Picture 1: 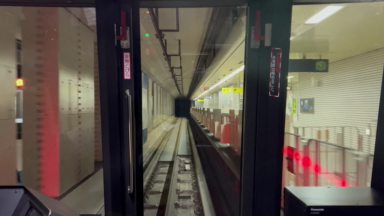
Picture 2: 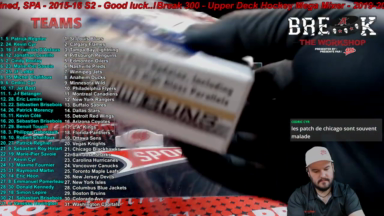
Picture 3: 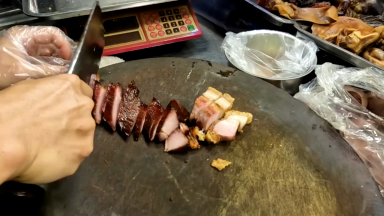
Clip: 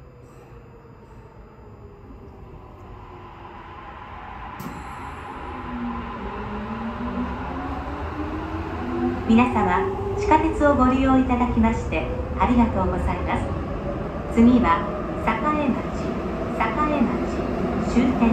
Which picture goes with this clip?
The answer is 1